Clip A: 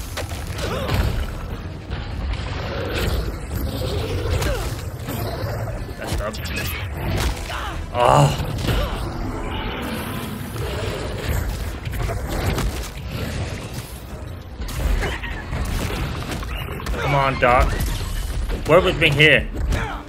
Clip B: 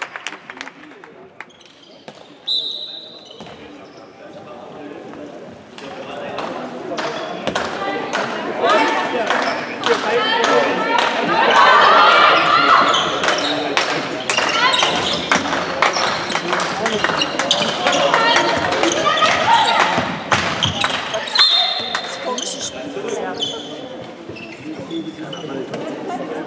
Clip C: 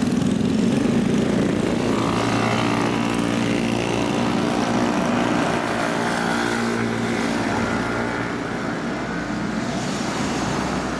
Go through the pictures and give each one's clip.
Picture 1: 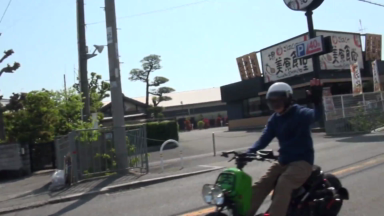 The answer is C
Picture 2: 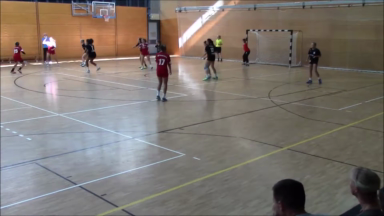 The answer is B